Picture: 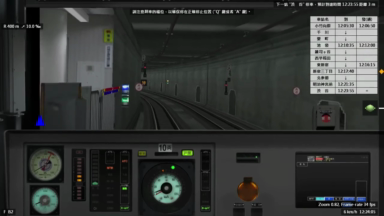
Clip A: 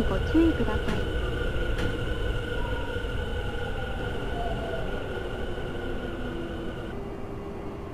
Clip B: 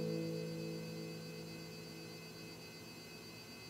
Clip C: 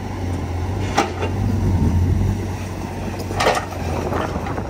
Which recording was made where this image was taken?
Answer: A